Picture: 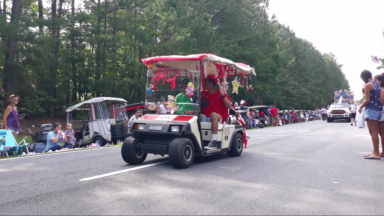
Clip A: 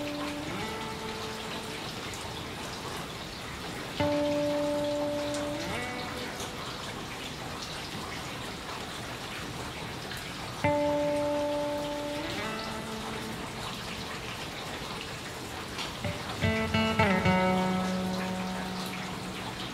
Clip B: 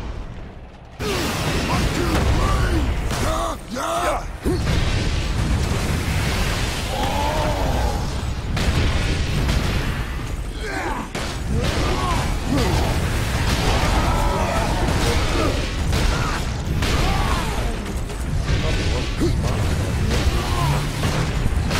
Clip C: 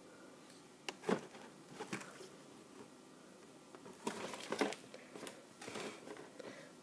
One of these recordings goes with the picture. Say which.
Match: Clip A